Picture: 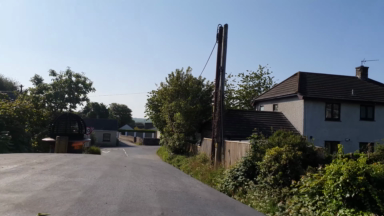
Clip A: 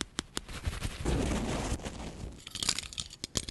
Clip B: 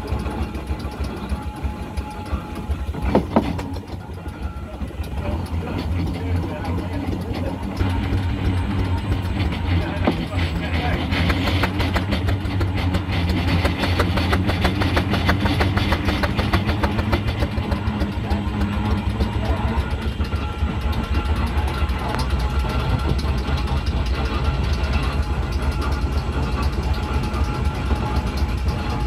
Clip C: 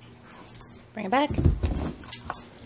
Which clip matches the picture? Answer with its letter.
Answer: B